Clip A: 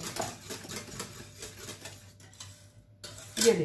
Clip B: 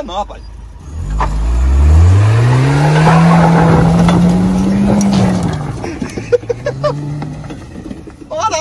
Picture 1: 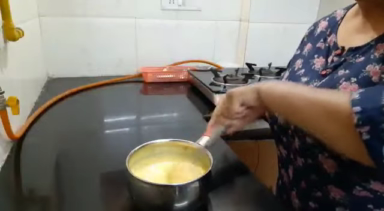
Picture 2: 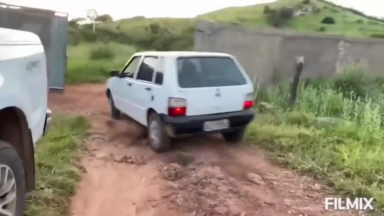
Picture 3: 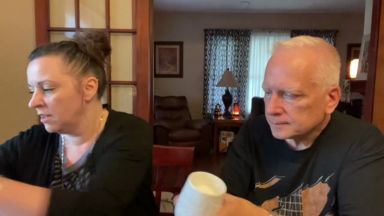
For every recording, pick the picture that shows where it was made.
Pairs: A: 1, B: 2